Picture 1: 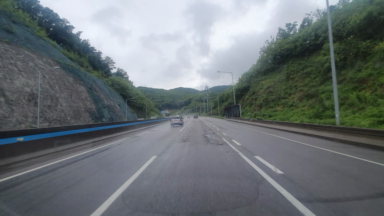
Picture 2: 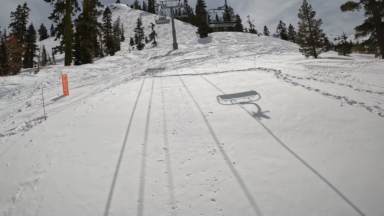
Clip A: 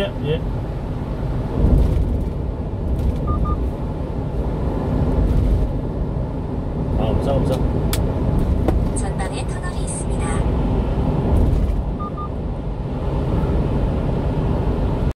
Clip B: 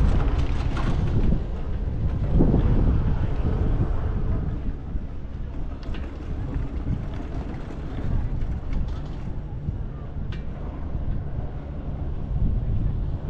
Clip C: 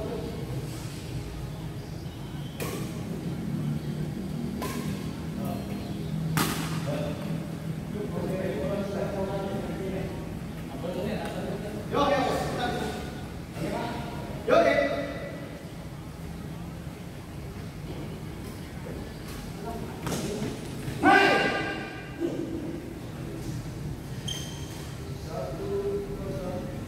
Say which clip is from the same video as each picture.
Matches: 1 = A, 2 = B